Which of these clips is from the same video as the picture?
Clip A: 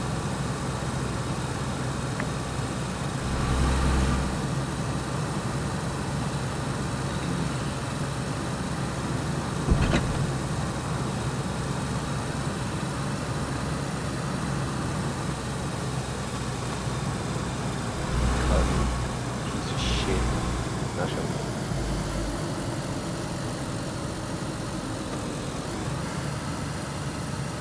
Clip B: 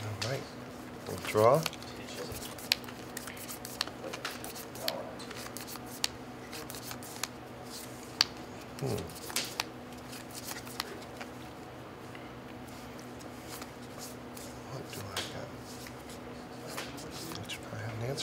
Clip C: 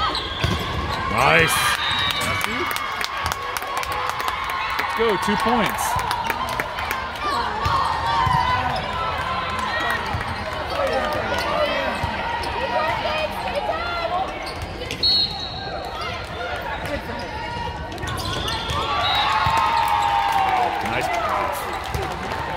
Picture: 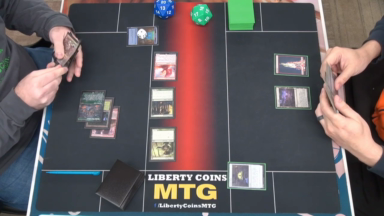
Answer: B